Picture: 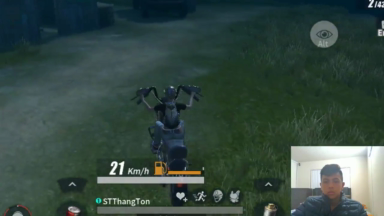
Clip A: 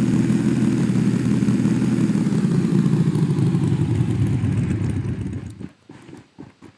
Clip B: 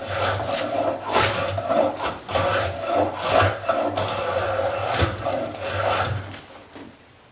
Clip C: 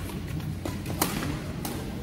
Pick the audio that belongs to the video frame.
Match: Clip A